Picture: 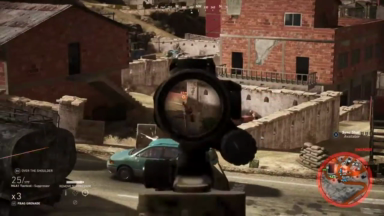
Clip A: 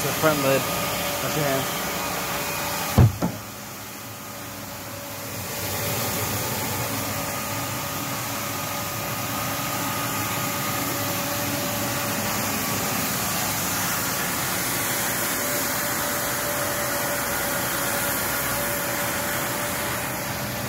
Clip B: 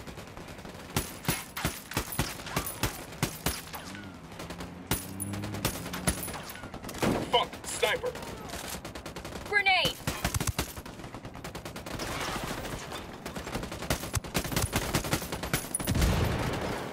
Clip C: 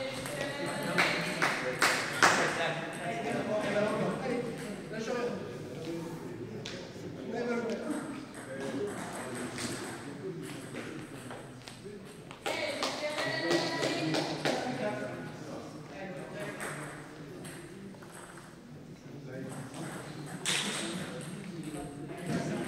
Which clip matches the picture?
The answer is B